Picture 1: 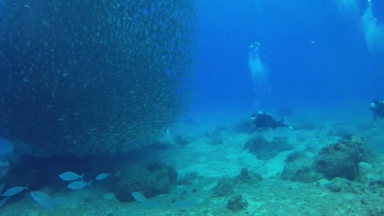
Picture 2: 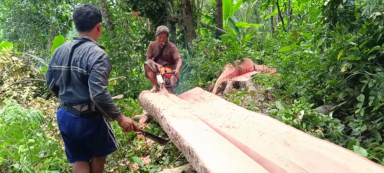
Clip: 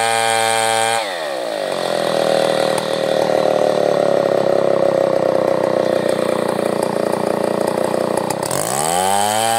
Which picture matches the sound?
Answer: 2